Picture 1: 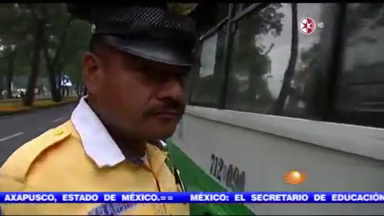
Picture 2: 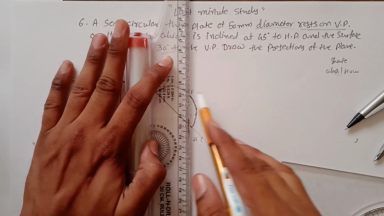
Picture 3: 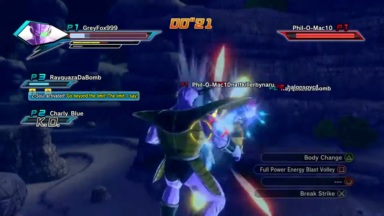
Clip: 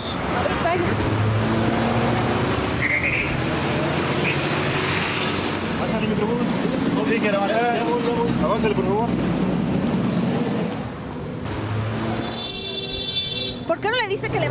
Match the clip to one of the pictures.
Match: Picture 1